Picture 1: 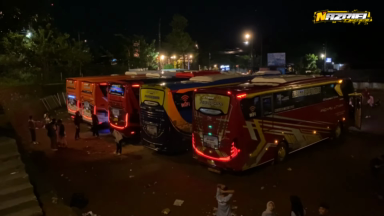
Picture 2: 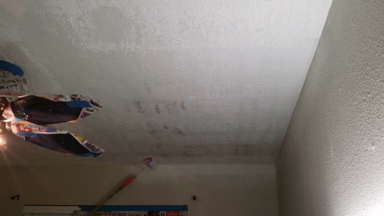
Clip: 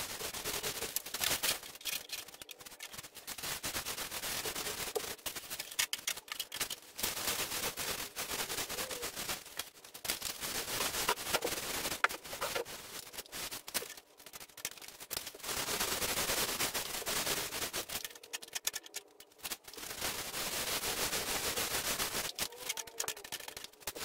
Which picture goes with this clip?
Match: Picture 2